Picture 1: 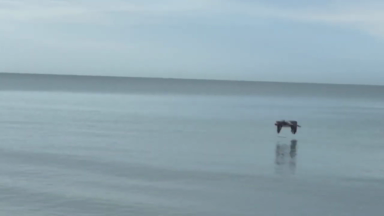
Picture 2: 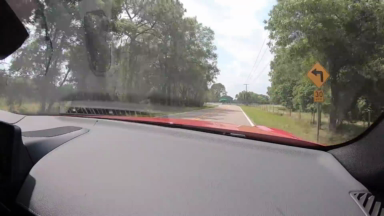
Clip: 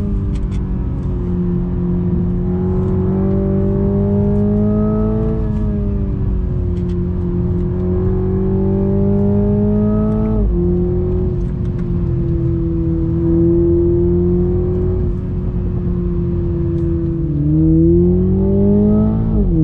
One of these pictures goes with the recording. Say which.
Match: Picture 2